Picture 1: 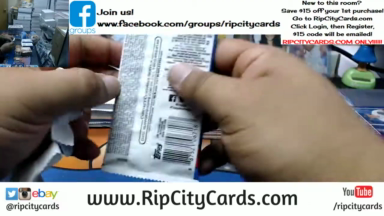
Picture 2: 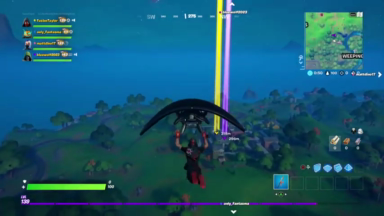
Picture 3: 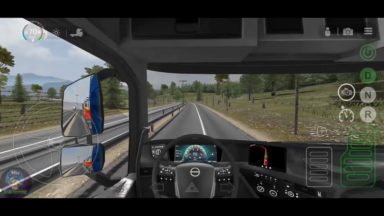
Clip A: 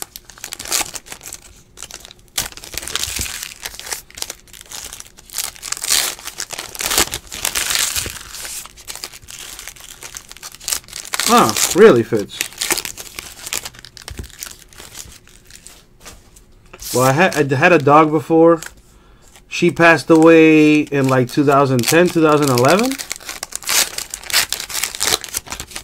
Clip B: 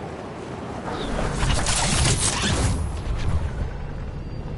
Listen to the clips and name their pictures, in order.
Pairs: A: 1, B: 2